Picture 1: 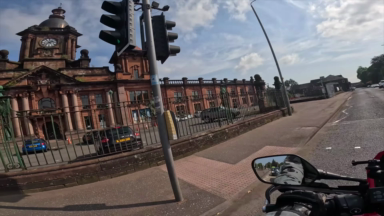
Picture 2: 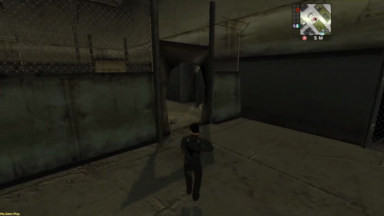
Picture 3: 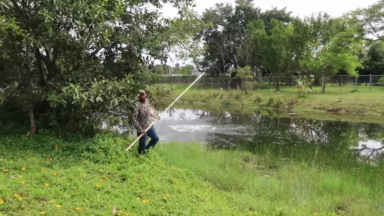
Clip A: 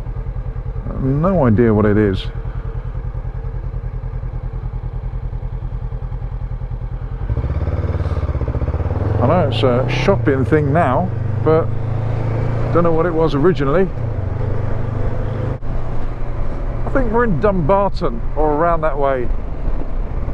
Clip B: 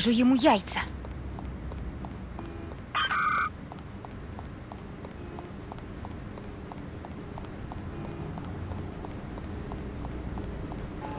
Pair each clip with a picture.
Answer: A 1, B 2